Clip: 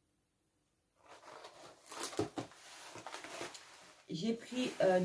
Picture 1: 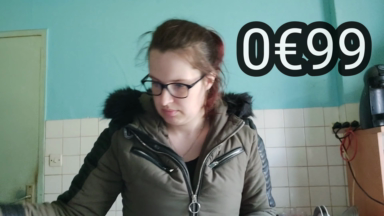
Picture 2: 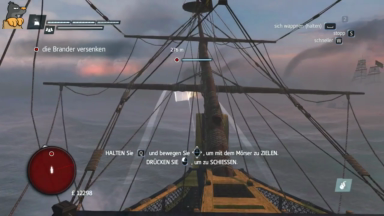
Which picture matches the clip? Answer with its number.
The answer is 1